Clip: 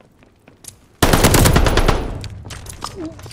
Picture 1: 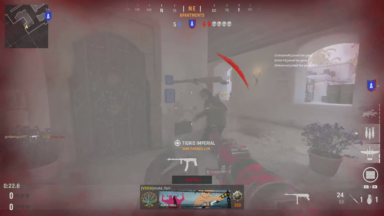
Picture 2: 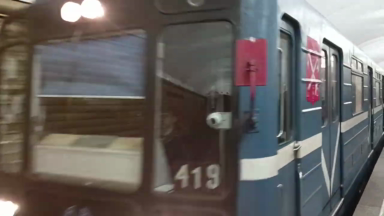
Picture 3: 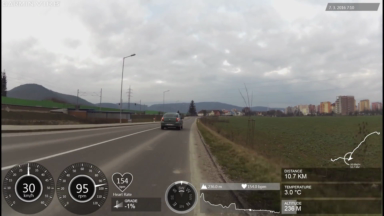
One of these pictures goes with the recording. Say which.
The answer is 1